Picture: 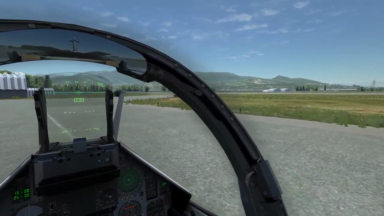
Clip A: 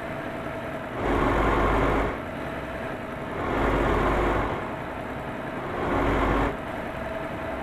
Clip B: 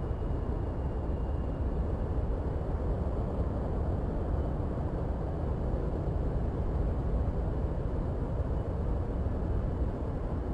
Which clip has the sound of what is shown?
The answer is B